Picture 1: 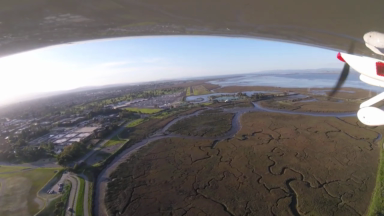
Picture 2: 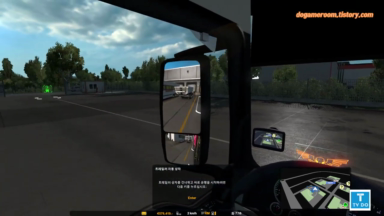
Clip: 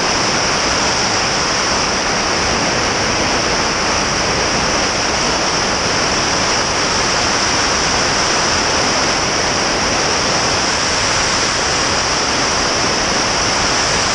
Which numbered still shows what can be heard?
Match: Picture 1